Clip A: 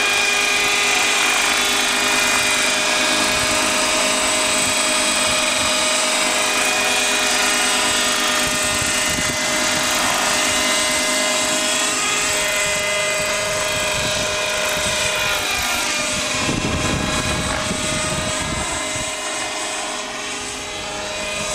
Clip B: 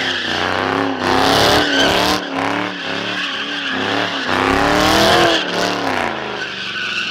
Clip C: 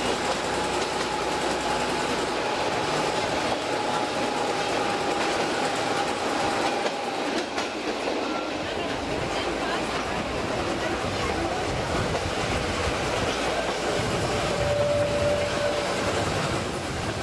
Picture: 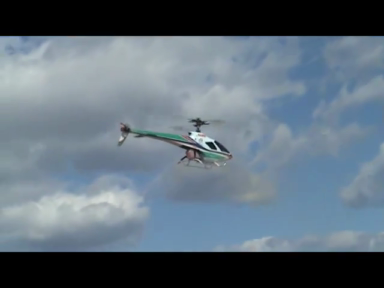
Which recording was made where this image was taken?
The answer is A